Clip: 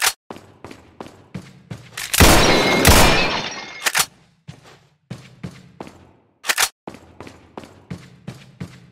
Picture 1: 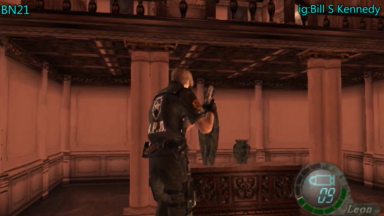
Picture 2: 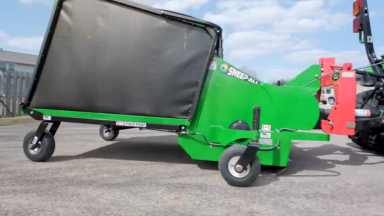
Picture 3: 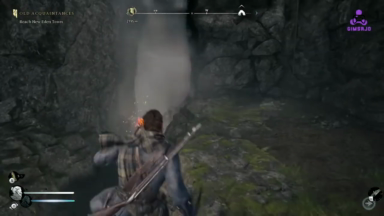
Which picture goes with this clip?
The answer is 1